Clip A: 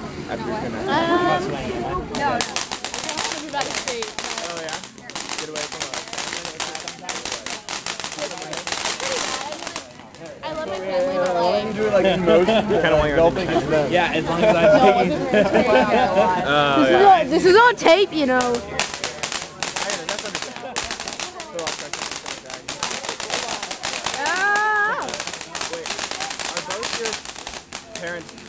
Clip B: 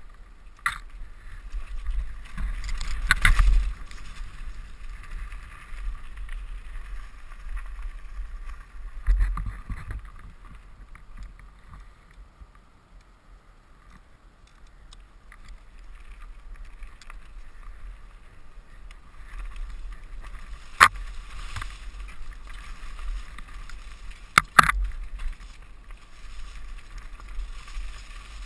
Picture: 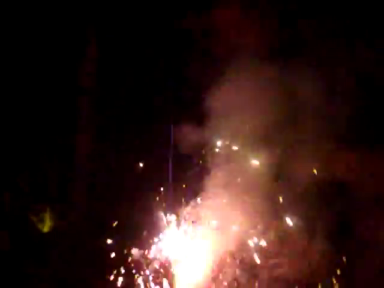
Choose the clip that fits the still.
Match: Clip A